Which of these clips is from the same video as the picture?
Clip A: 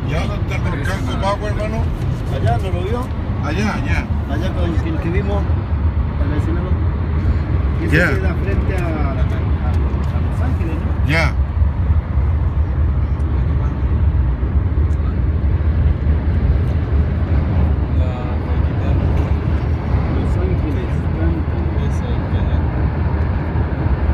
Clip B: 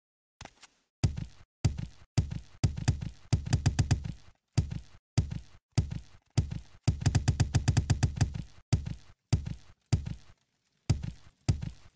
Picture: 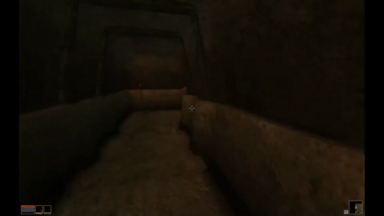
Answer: B